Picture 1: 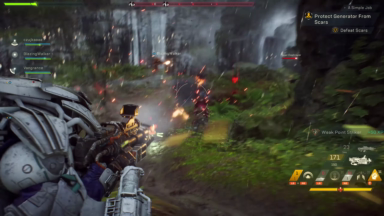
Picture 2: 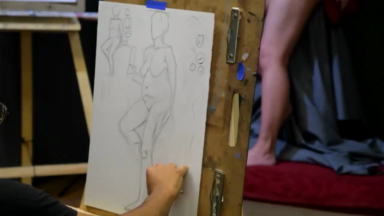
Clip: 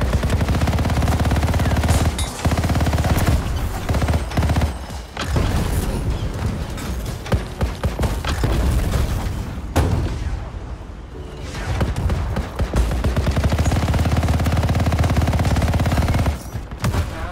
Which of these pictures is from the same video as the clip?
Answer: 1